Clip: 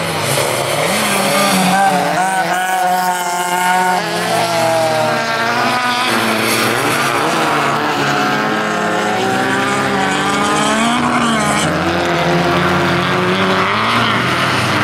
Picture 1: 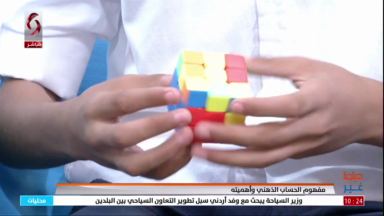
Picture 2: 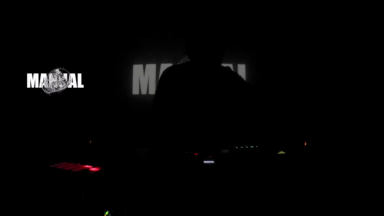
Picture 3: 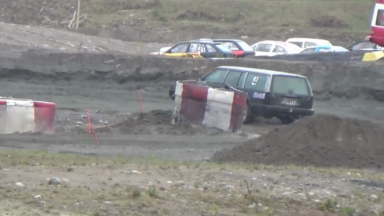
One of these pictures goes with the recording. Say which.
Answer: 3